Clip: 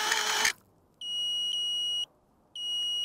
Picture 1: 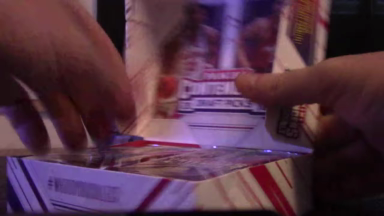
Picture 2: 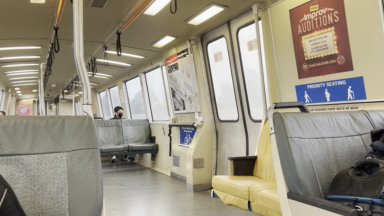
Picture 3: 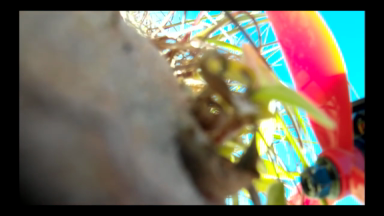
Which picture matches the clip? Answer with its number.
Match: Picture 3